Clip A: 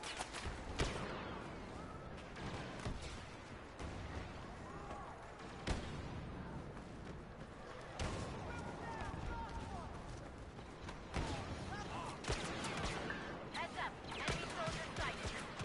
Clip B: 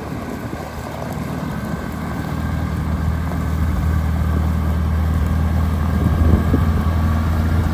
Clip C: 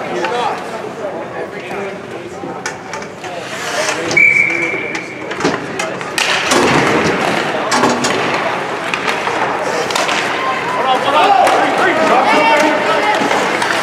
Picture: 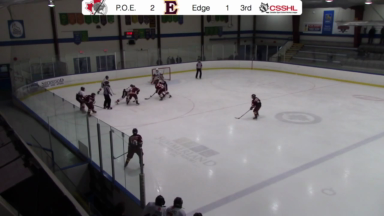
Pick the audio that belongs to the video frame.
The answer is C